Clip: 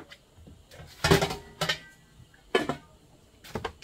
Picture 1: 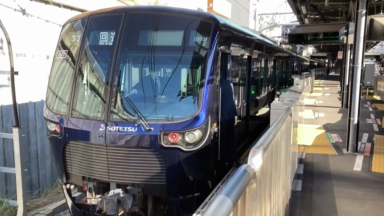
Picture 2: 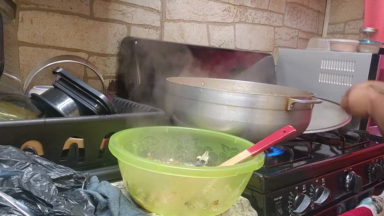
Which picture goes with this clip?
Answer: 2